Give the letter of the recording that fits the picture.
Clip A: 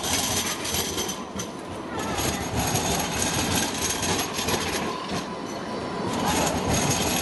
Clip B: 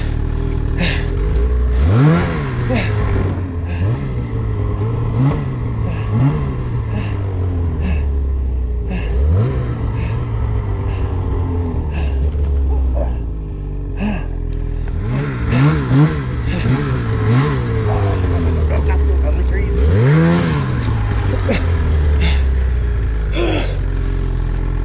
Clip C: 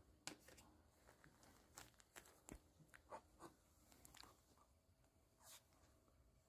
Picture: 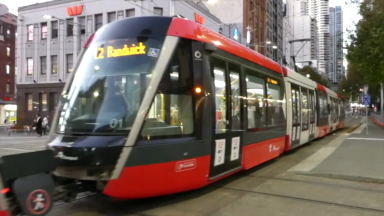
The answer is A